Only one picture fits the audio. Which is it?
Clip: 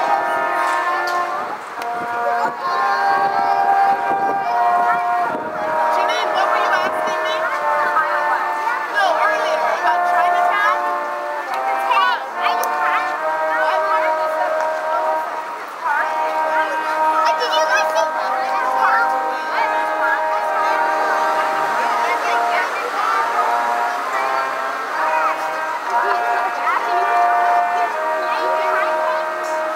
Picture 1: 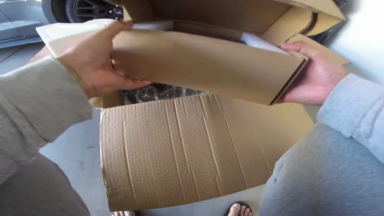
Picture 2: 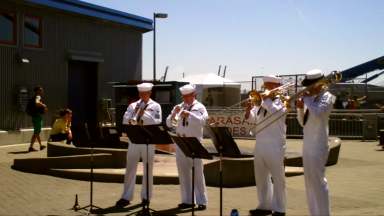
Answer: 2